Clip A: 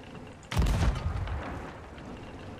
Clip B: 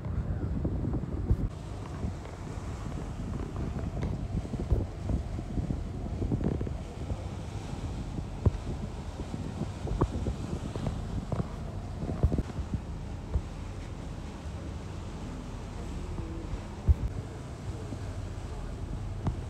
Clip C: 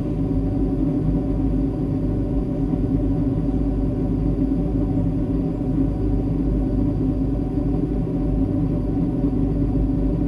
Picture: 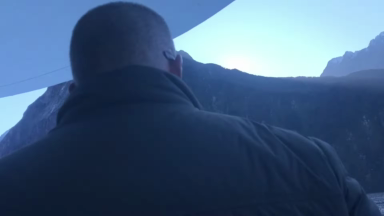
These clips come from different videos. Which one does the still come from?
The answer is B